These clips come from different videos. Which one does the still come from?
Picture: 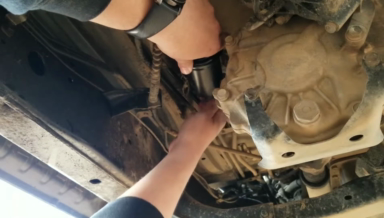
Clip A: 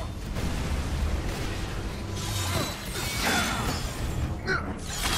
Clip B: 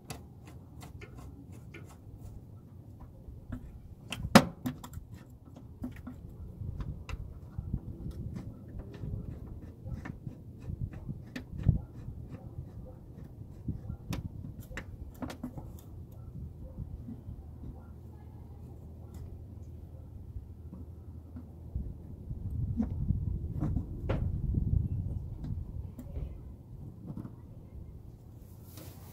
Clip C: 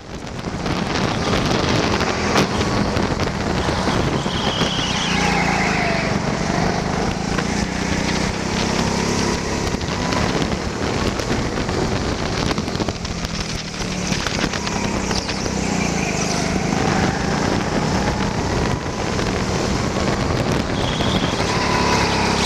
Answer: B